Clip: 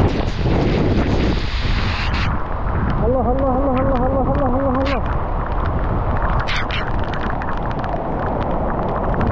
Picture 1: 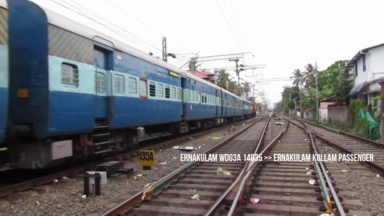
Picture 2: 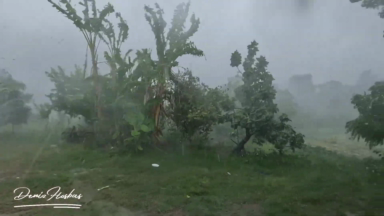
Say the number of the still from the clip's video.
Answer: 2